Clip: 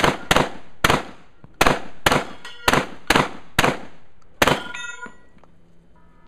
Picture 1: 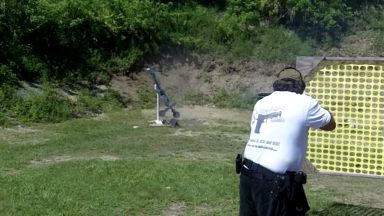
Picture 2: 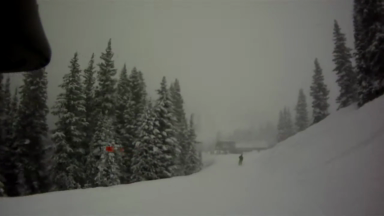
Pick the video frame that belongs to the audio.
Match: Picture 1